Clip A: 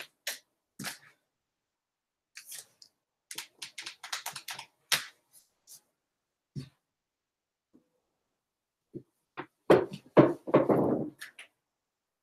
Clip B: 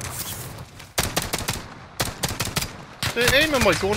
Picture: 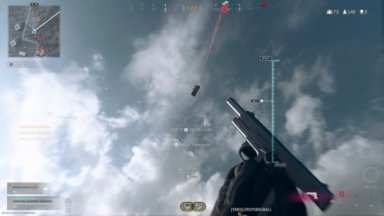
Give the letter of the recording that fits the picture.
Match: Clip B